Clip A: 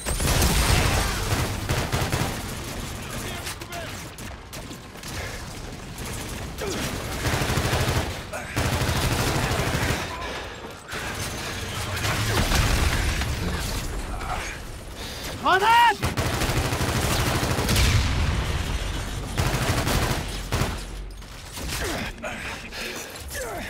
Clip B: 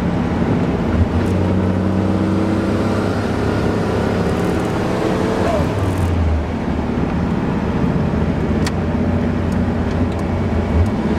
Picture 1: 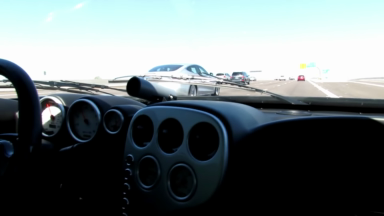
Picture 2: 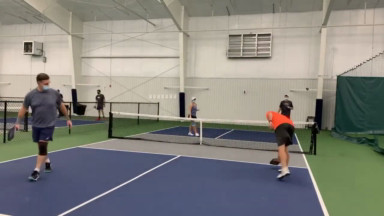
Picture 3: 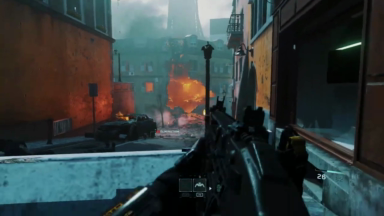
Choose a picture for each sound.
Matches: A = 3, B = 1